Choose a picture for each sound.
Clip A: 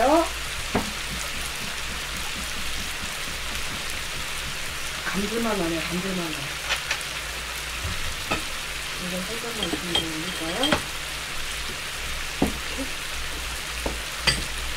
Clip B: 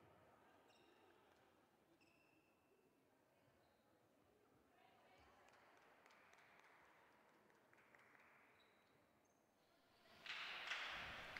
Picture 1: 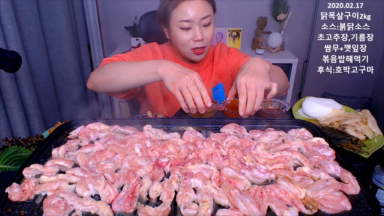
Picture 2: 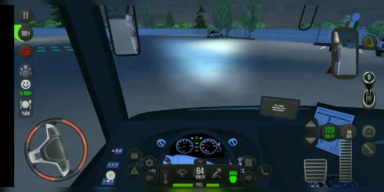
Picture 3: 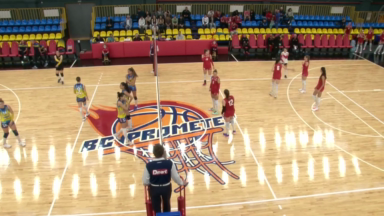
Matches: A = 1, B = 3